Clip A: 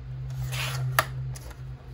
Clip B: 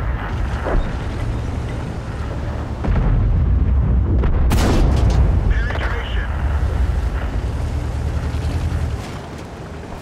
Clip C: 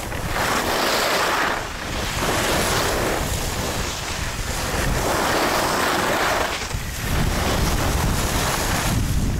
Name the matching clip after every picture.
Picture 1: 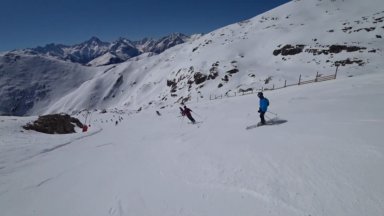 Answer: C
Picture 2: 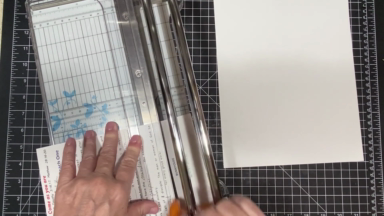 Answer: A